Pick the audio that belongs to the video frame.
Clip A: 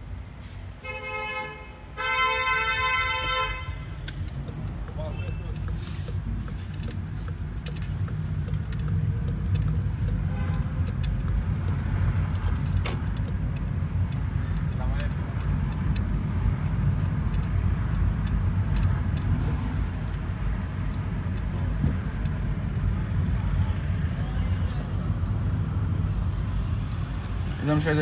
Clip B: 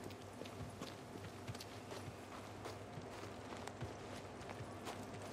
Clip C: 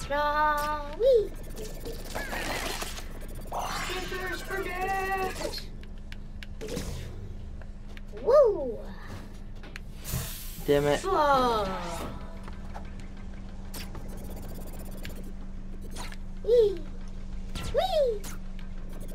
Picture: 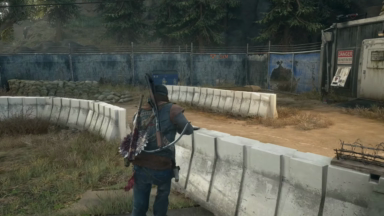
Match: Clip B